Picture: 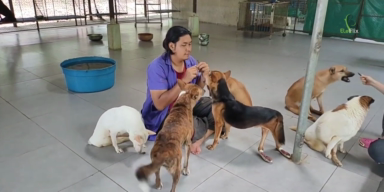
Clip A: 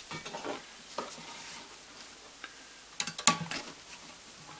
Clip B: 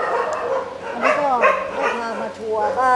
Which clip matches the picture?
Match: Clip B